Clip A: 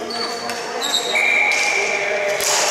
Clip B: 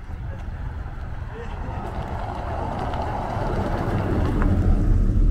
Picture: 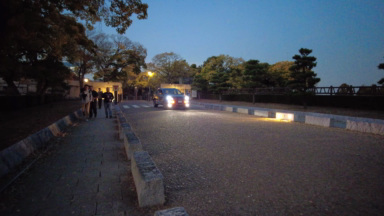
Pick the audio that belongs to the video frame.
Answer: B